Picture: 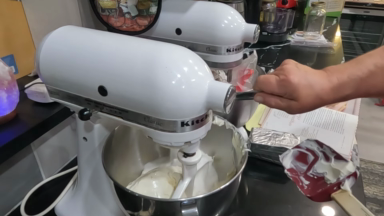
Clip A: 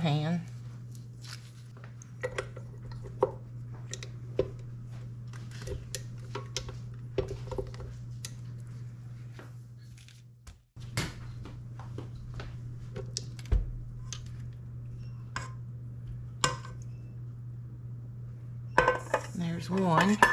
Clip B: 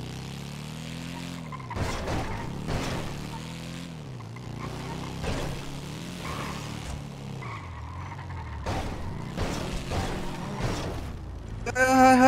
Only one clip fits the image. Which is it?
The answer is A